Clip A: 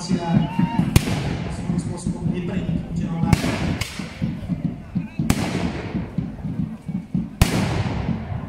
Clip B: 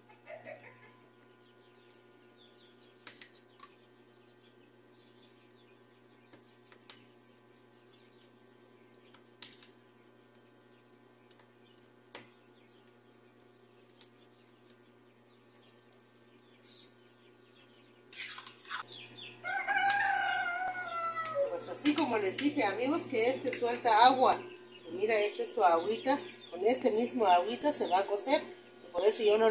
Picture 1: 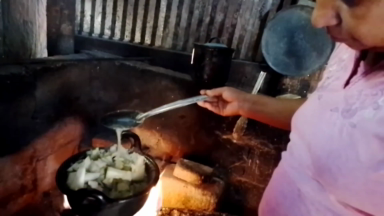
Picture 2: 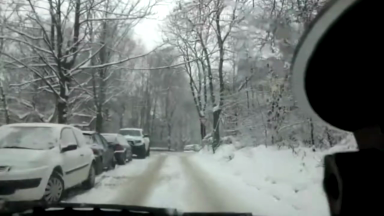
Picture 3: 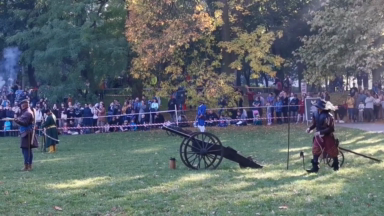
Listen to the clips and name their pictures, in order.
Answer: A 3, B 1